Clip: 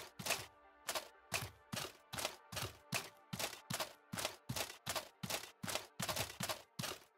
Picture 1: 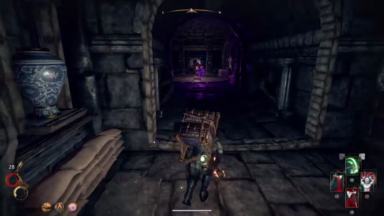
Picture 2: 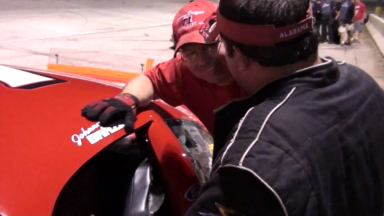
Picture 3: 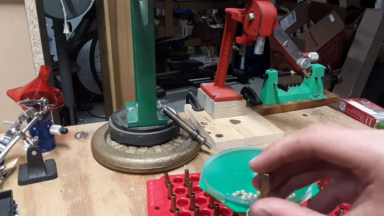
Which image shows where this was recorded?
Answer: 1